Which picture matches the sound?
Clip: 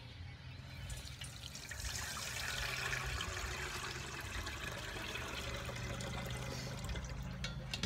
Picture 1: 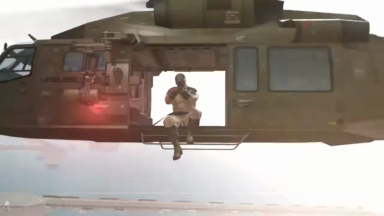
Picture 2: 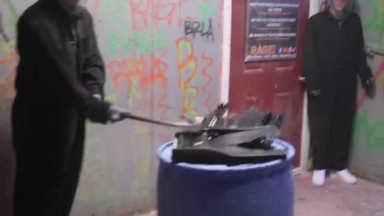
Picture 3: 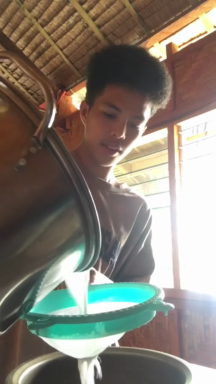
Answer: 3